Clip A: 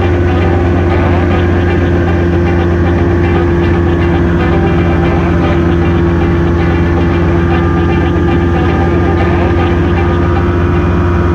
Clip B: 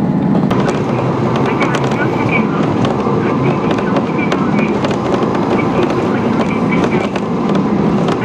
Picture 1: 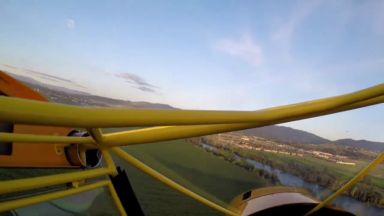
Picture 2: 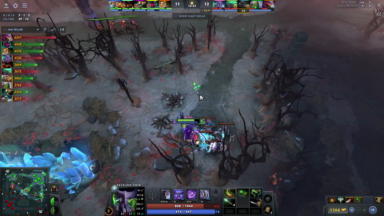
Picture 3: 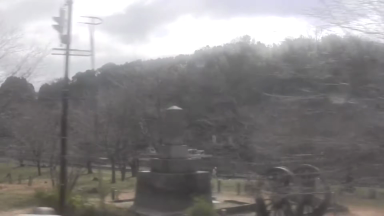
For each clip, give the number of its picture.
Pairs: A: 1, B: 3